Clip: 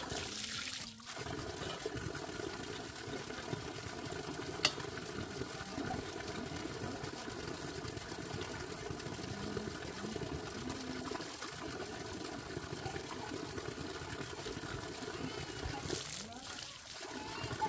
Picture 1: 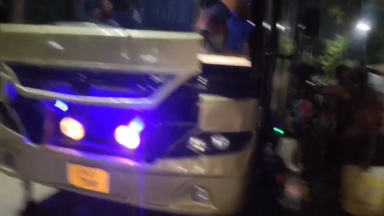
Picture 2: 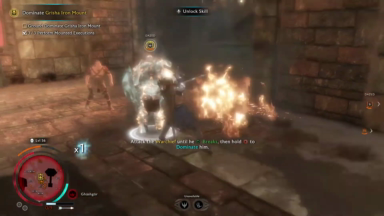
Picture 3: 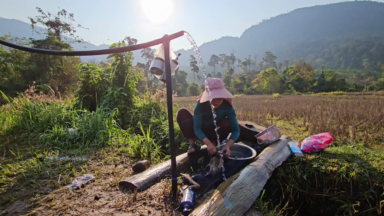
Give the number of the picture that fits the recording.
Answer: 3